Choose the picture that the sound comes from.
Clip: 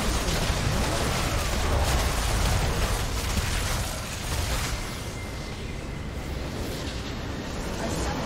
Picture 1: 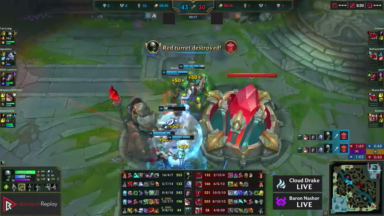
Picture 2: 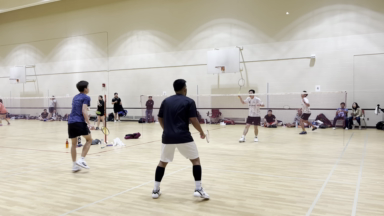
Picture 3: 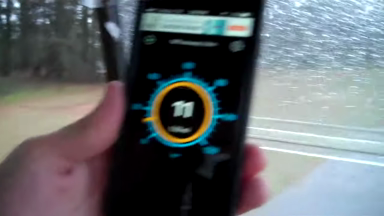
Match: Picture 1